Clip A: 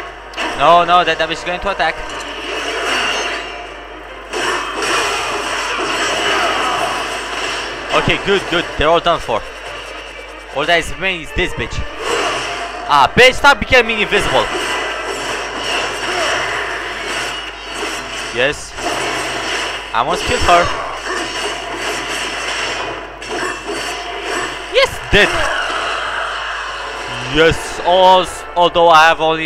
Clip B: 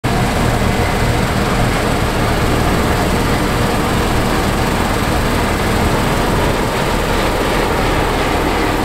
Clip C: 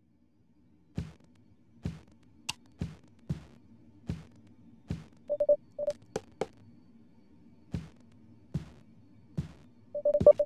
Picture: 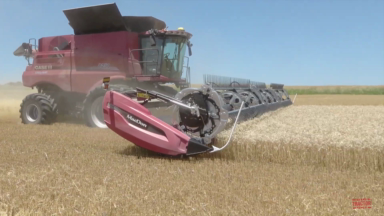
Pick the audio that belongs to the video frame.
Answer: B